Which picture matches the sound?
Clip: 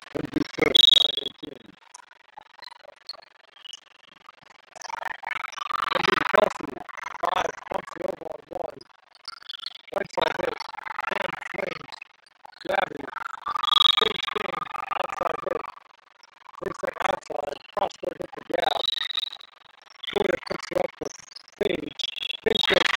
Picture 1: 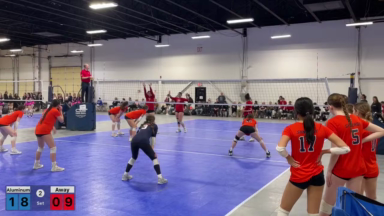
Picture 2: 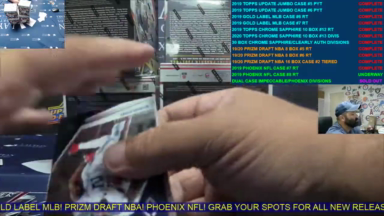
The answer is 1